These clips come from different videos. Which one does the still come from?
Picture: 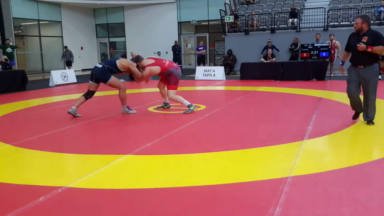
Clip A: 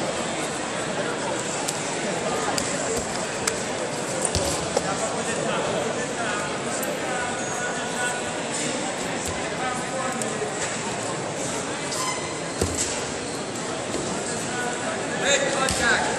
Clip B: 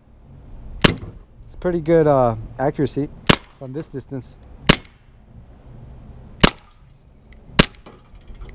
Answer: A